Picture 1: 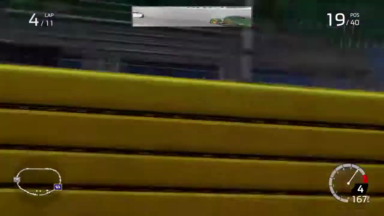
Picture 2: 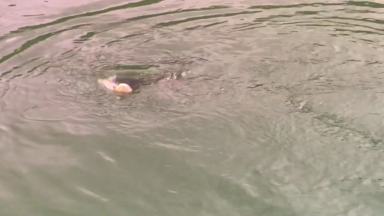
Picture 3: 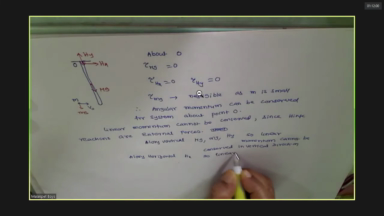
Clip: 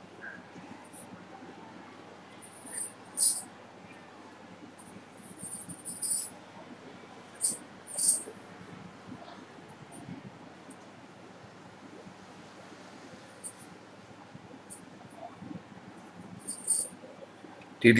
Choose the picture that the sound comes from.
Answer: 3